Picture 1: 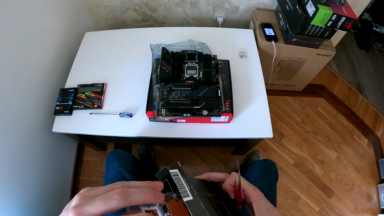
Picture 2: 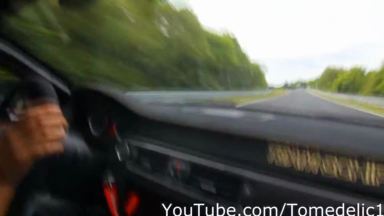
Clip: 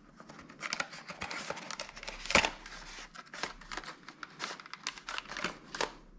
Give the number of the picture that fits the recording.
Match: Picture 1